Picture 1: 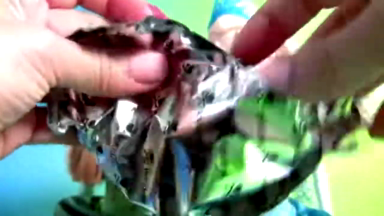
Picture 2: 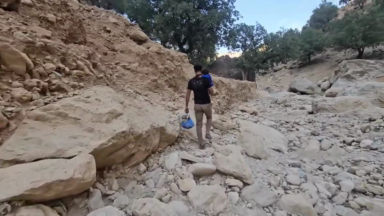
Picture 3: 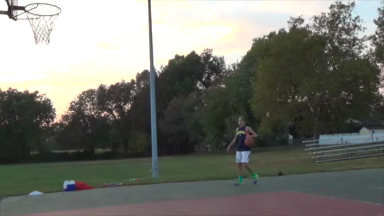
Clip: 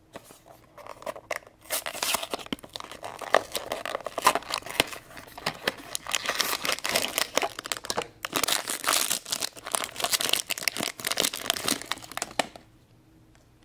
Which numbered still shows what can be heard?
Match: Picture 1